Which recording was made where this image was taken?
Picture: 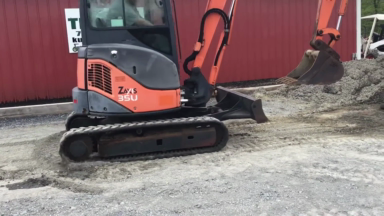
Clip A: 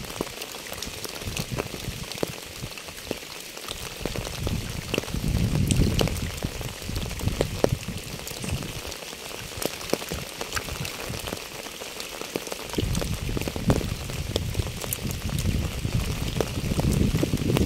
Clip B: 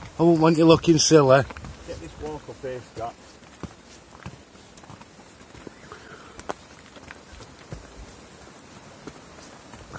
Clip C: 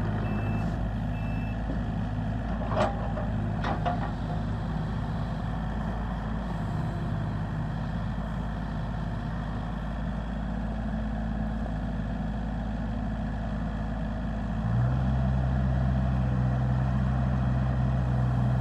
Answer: C